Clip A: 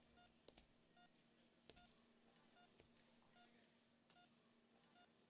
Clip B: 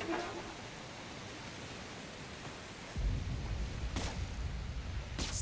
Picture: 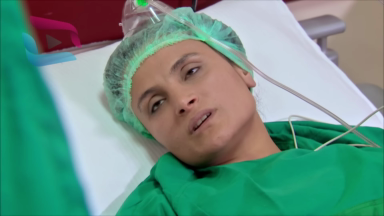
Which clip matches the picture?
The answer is A